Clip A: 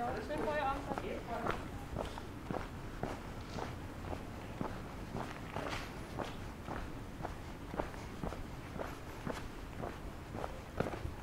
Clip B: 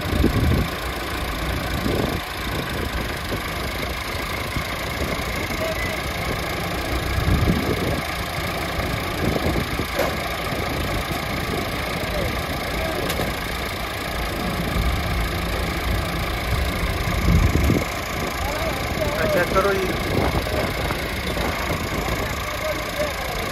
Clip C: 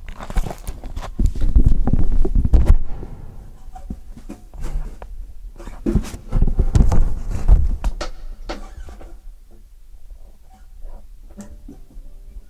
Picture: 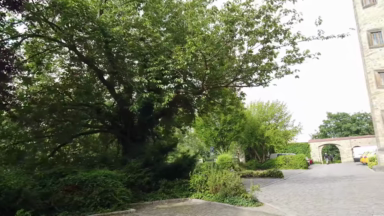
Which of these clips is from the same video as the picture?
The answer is A